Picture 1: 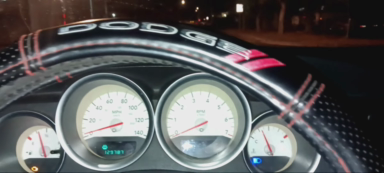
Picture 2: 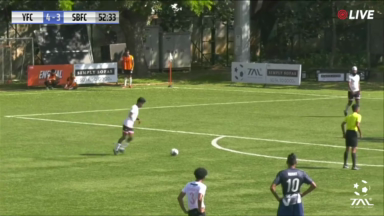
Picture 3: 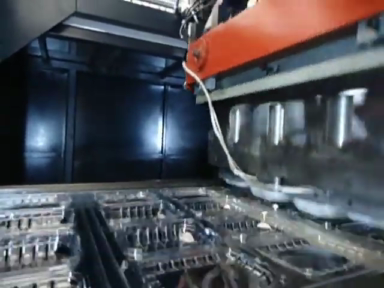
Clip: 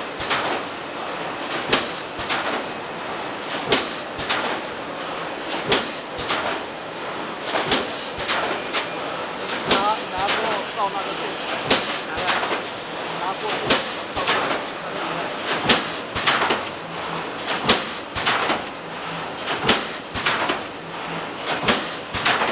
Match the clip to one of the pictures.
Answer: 3